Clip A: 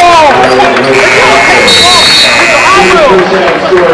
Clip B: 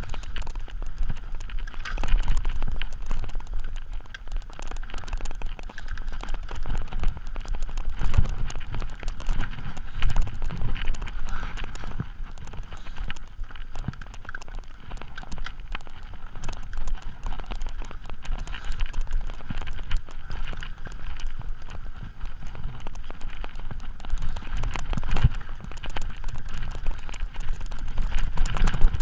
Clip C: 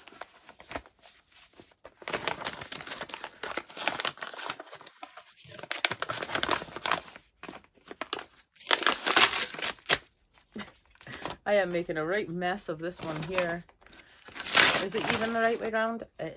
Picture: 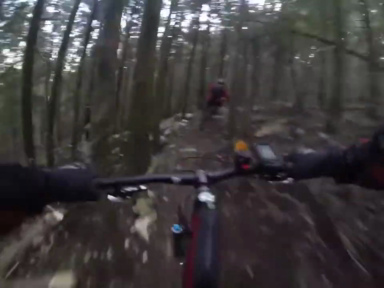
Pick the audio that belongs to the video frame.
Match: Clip B